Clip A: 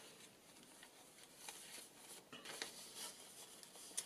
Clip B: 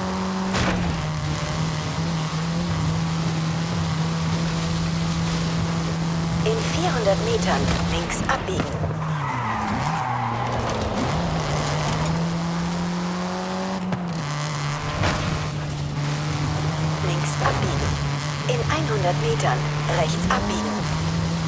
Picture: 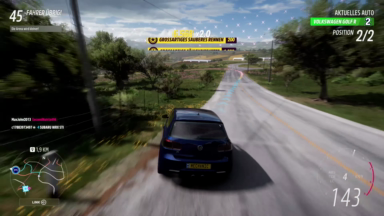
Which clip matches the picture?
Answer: B